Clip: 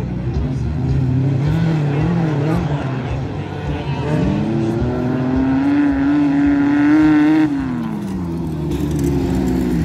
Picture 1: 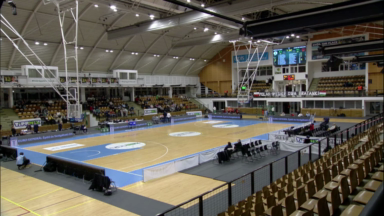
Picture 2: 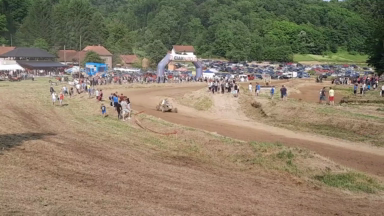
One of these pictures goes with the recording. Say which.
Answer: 2